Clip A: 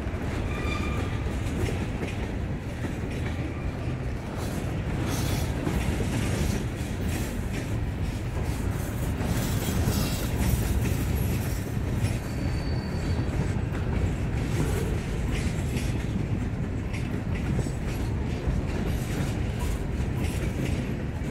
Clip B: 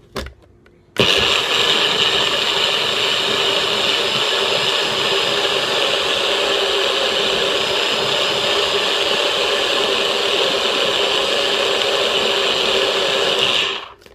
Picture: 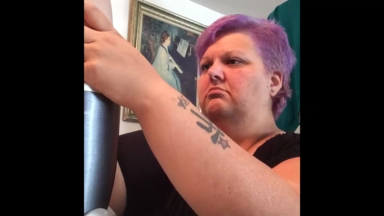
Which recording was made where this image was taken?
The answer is B